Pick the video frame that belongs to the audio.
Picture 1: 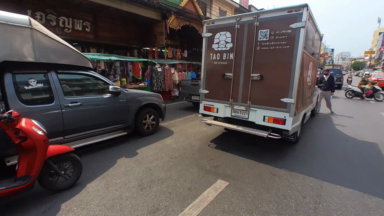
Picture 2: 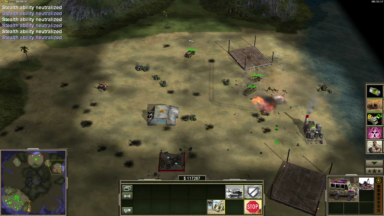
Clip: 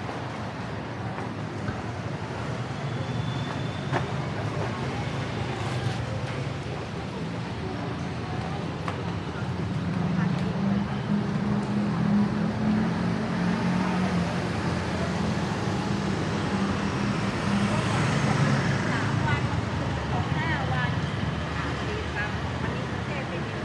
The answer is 1